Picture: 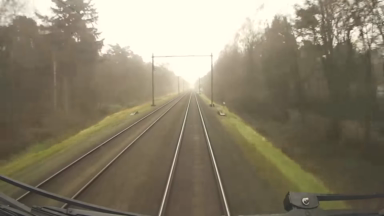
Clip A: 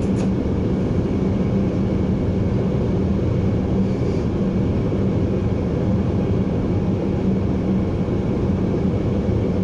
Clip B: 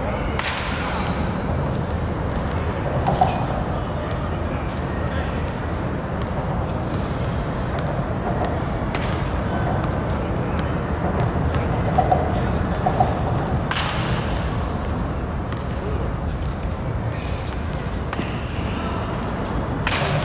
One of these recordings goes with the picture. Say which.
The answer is A